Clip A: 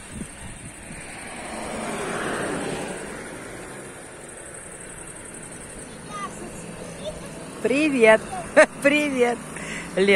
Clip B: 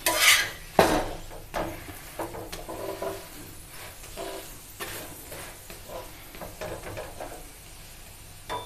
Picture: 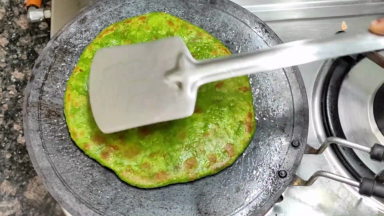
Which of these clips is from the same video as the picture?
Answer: B